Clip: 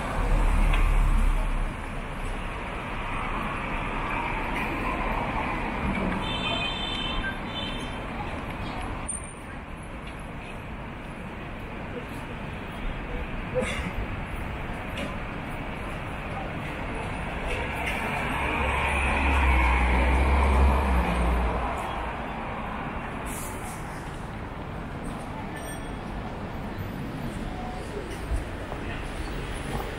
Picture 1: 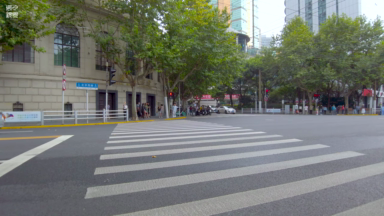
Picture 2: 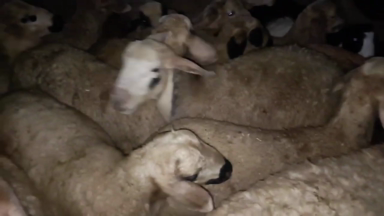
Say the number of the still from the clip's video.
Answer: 1